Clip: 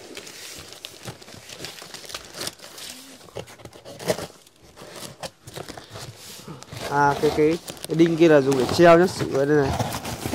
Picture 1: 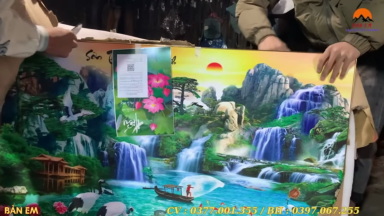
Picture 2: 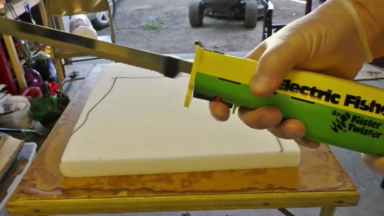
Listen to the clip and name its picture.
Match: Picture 1